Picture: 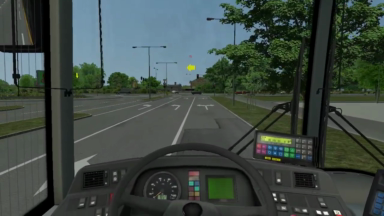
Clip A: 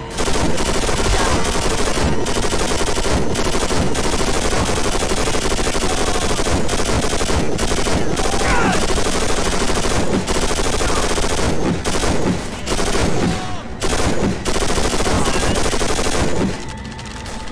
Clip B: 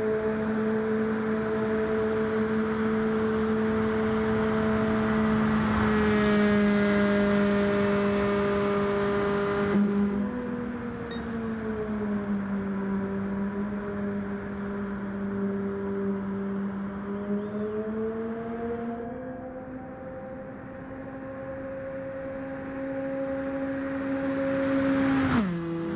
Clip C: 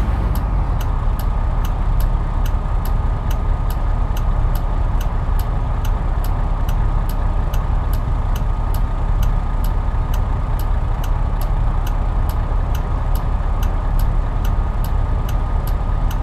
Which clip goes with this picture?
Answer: C